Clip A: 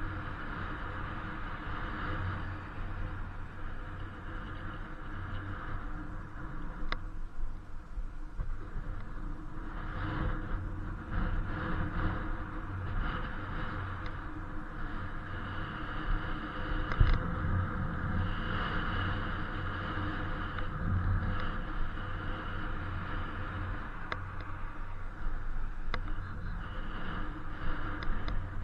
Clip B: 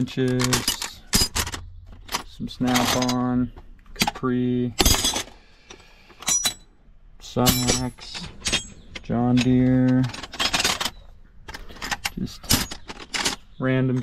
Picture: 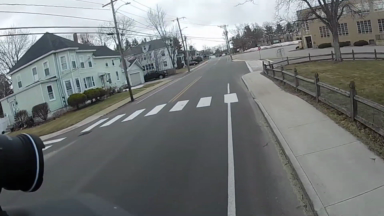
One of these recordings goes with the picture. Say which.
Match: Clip A